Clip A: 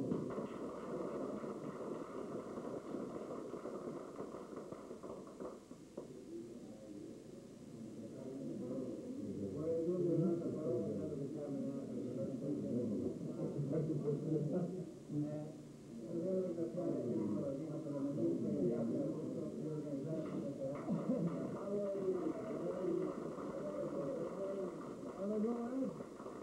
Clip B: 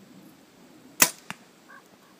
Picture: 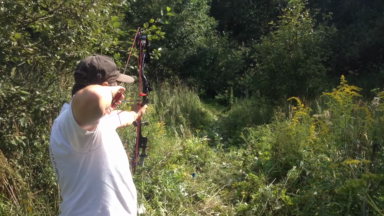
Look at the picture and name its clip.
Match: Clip B